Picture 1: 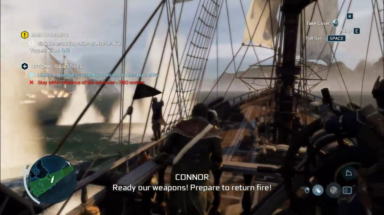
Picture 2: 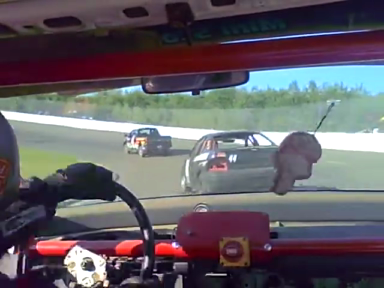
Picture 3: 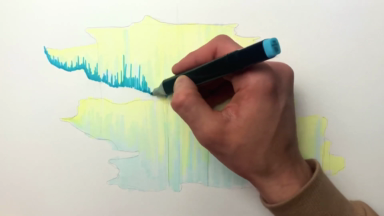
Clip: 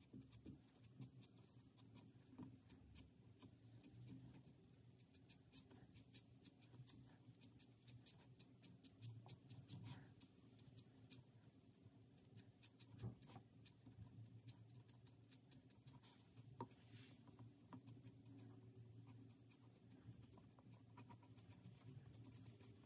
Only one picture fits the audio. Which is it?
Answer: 3